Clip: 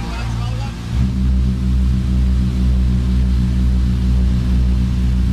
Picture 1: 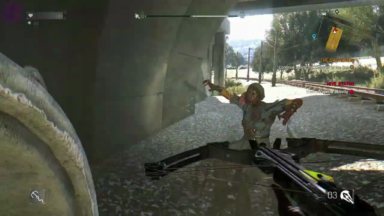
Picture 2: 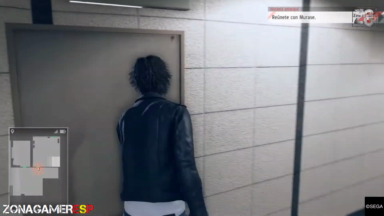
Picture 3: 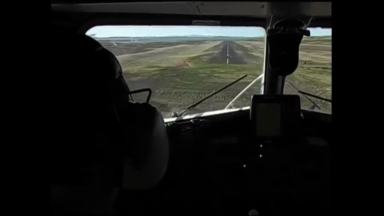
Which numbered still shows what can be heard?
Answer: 3